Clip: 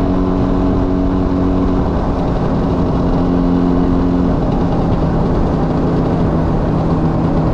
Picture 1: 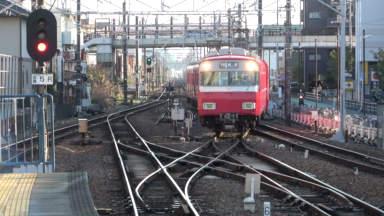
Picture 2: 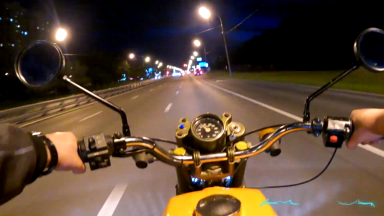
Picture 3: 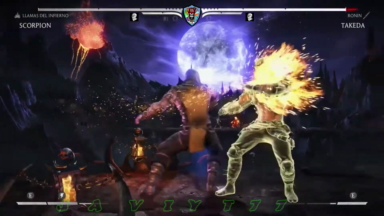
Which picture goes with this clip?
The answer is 2